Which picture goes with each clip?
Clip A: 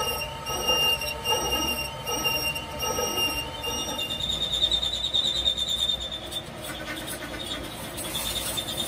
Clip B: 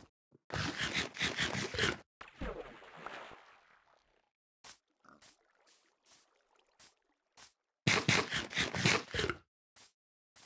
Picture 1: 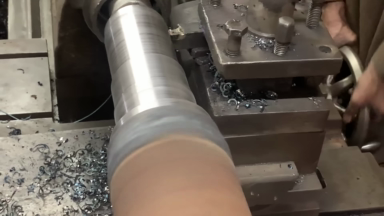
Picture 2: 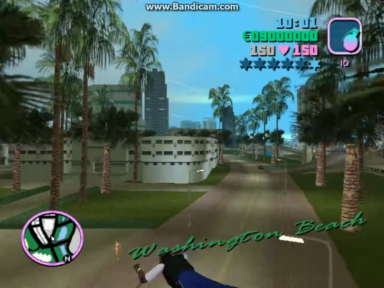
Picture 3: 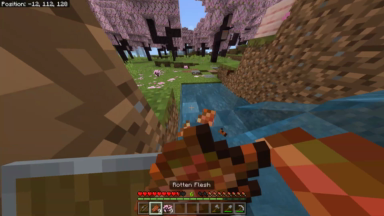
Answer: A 1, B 3